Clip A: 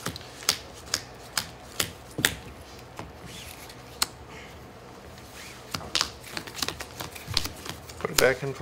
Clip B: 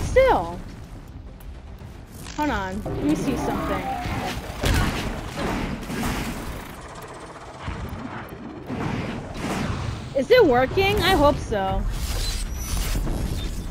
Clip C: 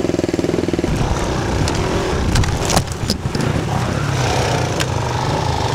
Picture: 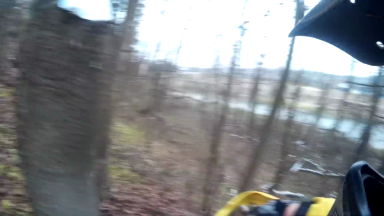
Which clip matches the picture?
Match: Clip C